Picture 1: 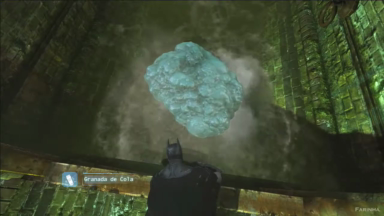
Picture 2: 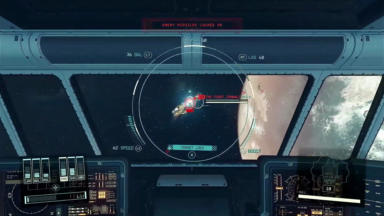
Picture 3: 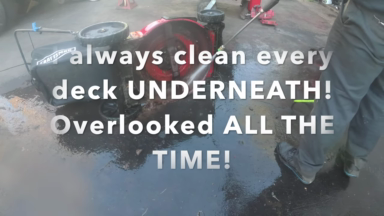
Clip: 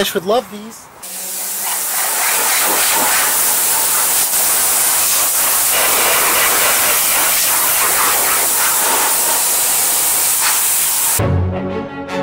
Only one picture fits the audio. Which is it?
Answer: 3